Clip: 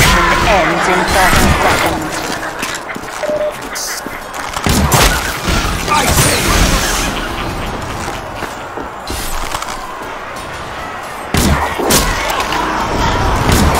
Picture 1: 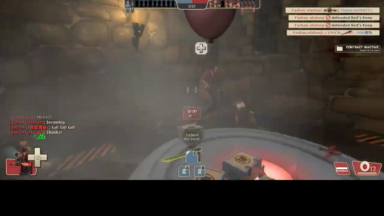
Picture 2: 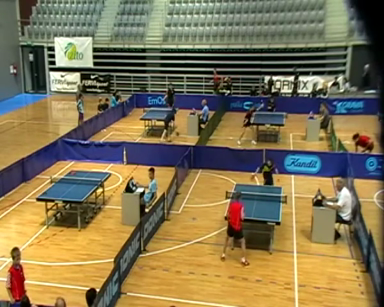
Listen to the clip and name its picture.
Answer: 1